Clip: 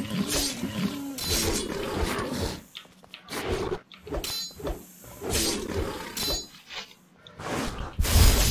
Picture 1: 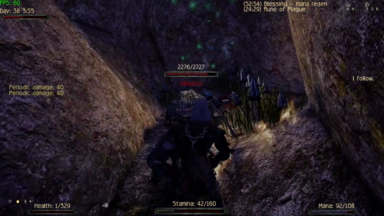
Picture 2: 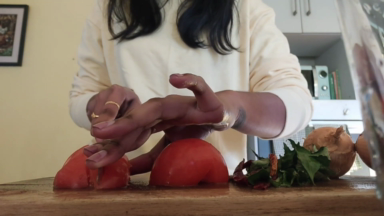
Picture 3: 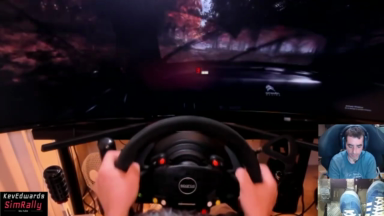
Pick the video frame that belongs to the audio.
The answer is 1